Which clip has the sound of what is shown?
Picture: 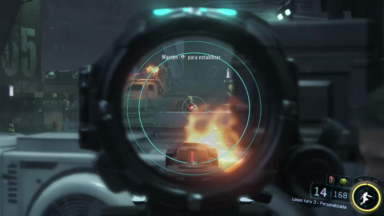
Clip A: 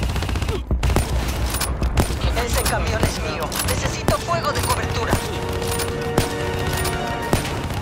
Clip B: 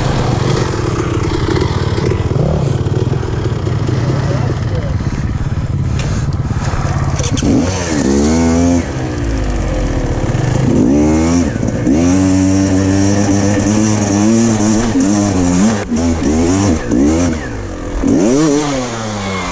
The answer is A